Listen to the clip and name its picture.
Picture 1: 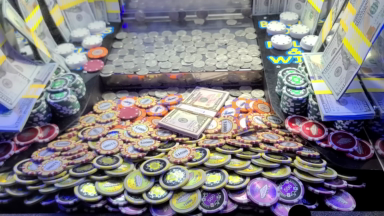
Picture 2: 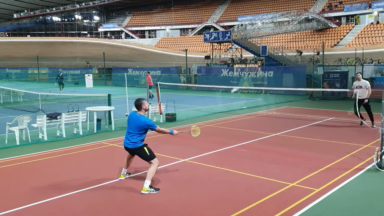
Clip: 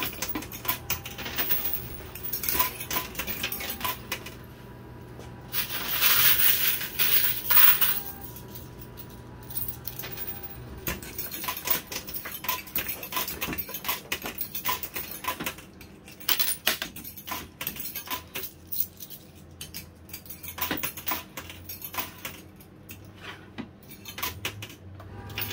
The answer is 1